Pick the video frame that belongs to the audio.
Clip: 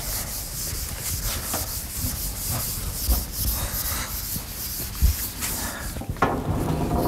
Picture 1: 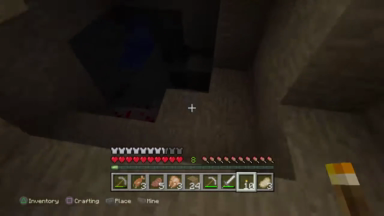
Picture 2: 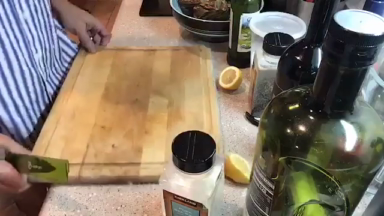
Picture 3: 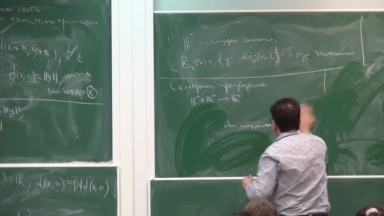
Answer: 3